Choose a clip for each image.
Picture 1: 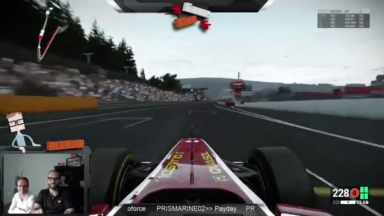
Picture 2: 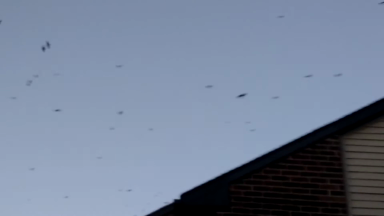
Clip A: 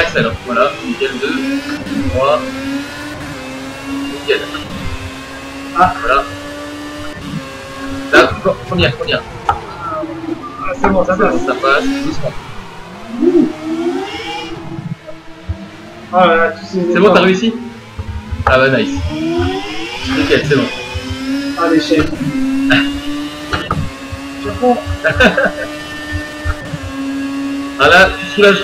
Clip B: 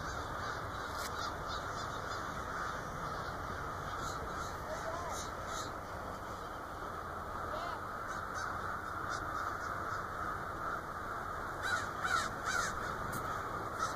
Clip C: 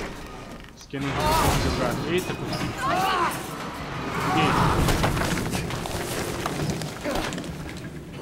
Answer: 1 A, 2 B